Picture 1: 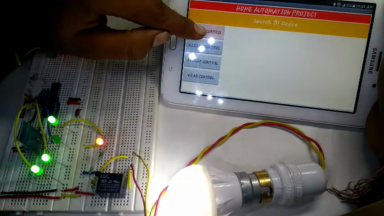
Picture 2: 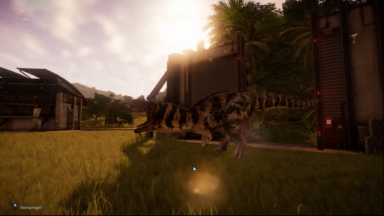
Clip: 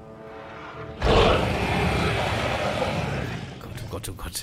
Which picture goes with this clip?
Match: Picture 2